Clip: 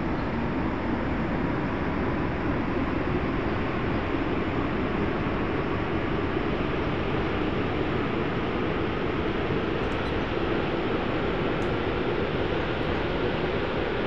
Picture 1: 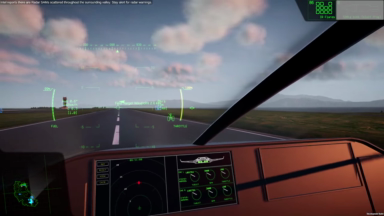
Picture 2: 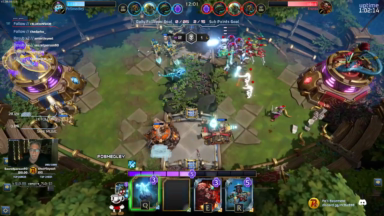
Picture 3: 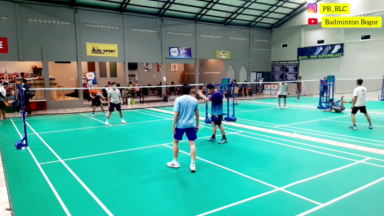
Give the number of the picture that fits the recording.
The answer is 1